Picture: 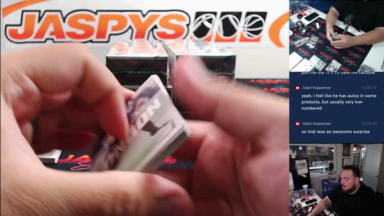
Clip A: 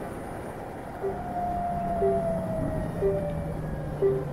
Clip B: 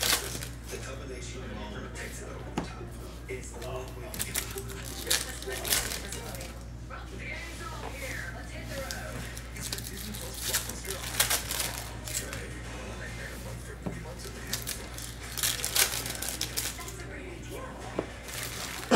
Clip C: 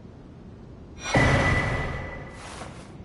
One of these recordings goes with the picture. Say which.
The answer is B